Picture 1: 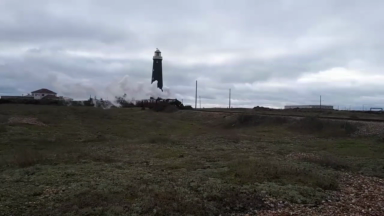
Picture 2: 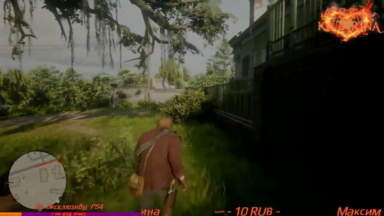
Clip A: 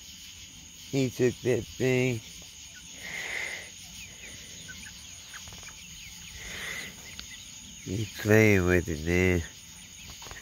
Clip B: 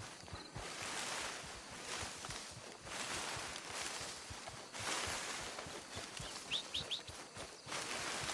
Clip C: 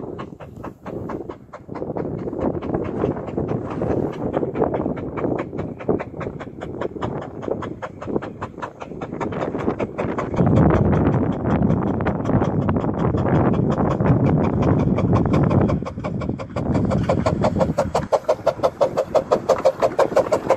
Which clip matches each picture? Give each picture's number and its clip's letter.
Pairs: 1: C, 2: B